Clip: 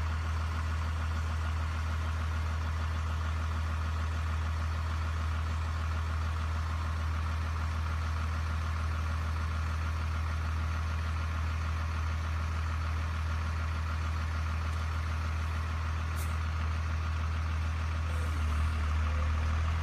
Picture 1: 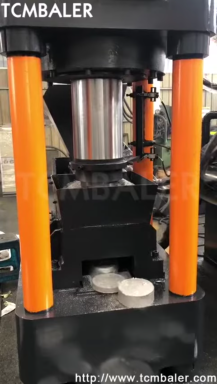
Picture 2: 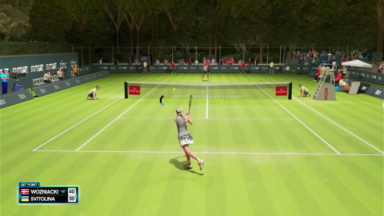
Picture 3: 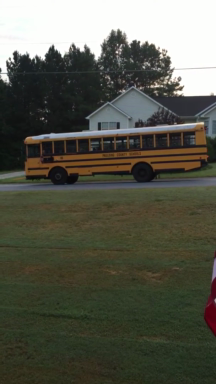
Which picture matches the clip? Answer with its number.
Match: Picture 3